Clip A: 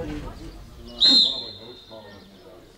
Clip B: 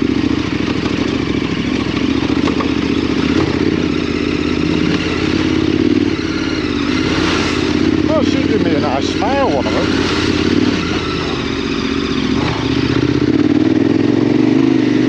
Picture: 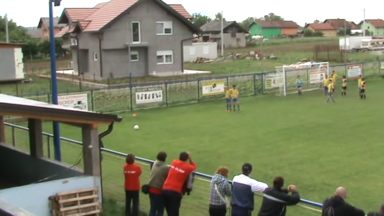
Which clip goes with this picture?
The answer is A